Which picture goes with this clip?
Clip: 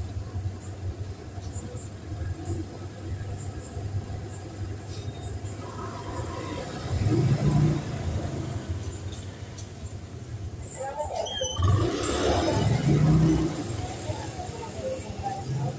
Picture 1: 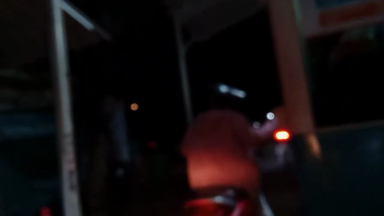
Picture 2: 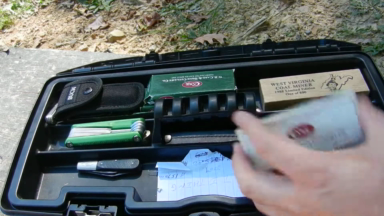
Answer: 1